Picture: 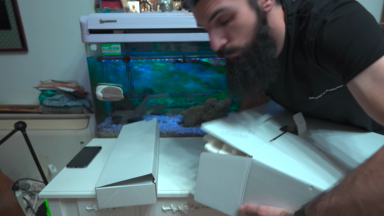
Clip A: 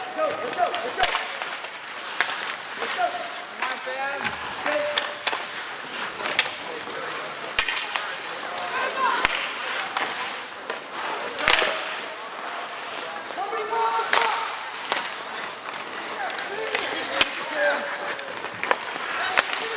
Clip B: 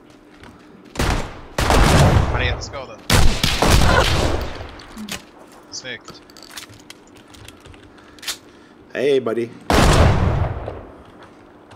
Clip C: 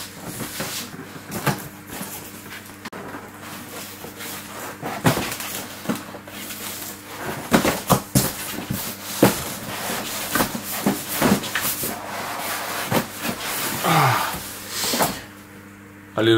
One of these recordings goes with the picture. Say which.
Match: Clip C